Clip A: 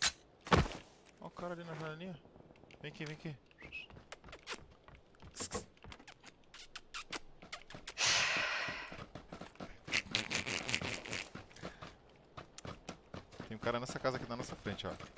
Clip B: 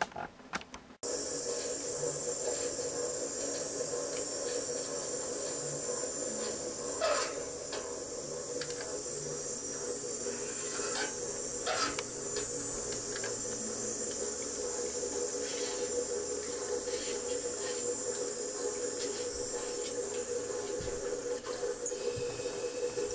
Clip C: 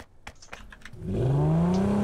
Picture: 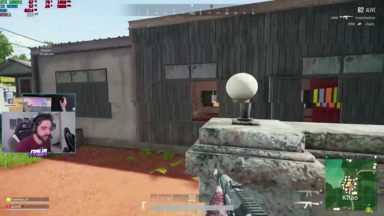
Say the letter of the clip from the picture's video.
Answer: A